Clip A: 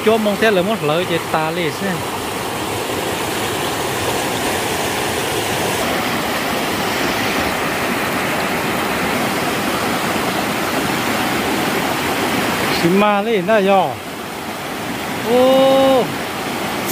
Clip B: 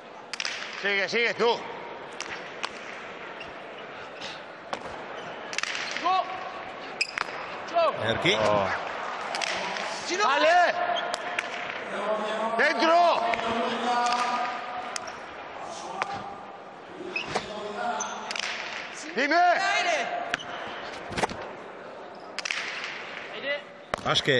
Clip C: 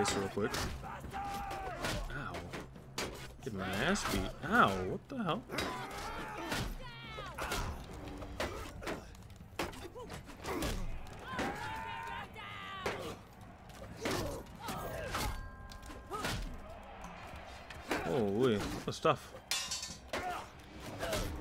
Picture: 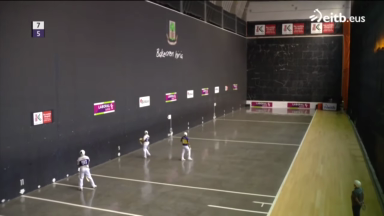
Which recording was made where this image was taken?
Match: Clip B